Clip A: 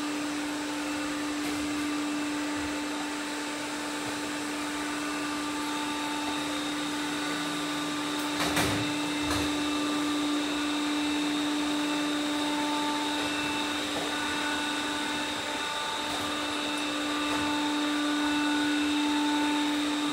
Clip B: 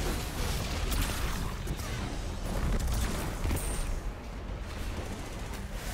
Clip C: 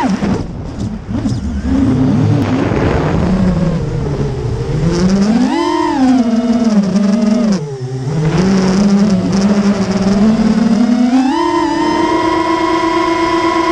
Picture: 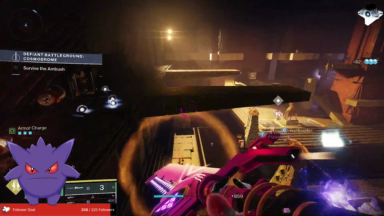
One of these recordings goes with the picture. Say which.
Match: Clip B